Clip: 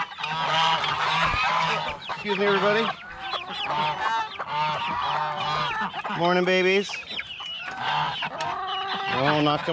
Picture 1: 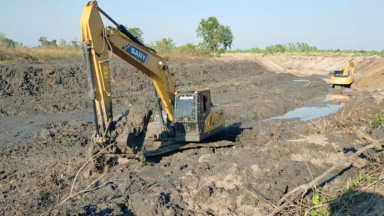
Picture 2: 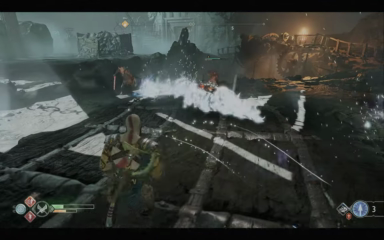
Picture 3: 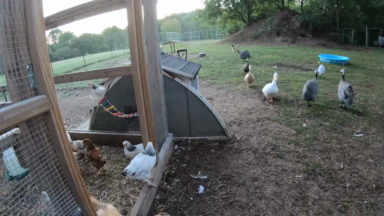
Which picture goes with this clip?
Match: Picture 3